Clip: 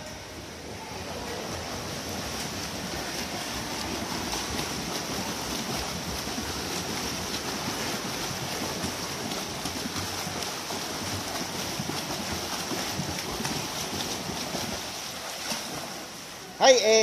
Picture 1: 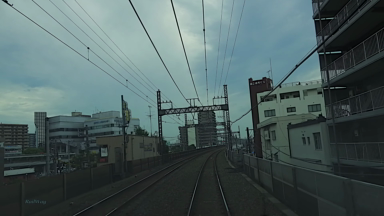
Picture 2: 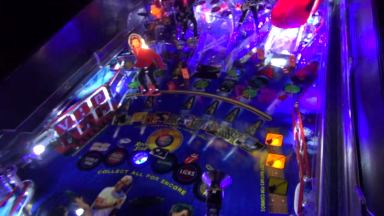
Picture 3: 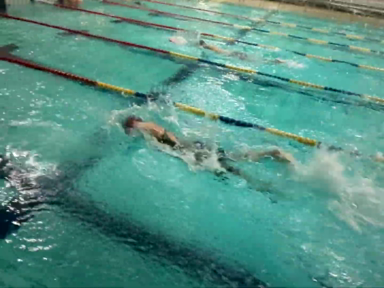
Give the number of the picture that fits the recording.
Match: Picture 3